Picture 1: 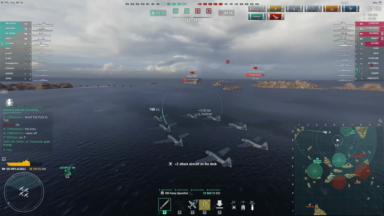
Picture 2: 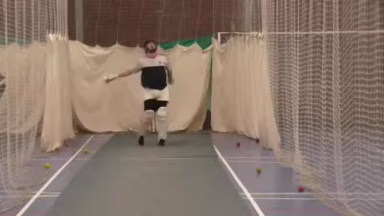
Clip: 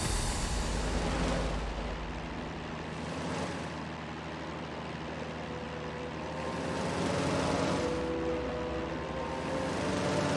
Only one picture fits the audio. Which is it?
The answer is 1